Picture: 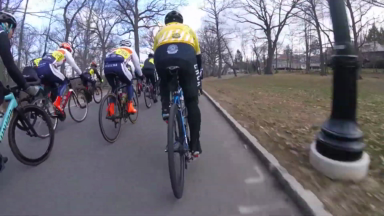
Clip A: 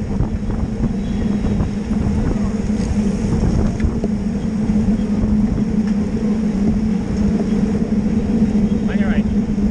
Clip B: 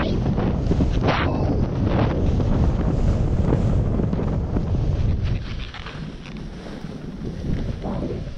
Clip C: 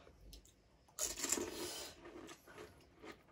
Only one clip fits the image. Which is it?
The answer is A